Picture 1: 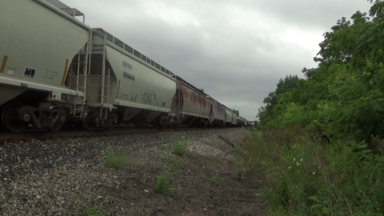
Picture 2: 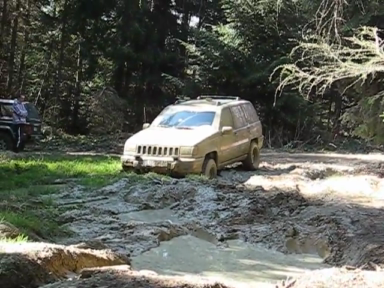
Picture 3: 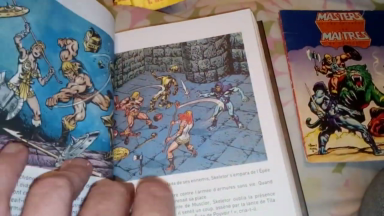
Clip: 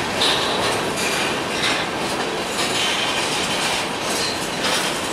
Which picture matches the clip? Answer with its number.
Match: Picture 1